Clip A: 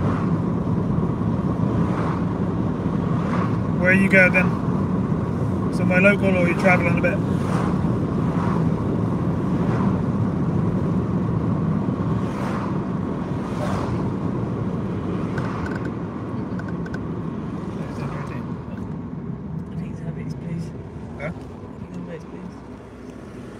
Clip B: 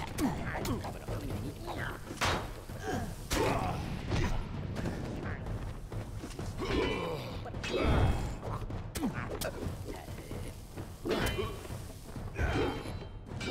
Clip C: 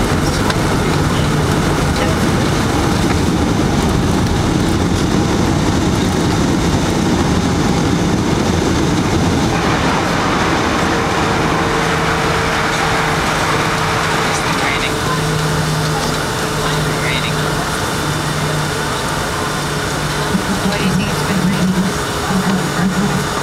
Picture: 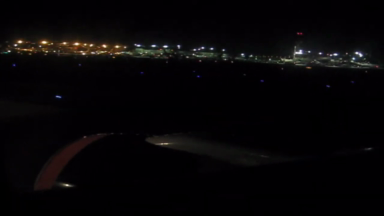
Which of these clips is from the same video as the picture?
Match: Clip C